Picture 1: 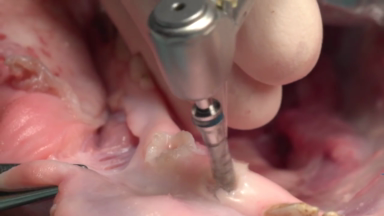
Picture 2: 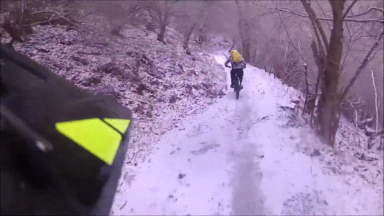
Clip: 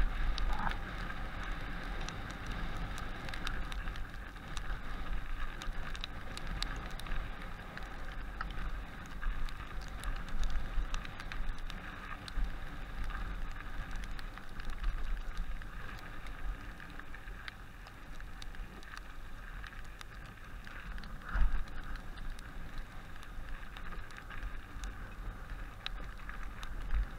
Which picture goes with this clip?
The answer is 2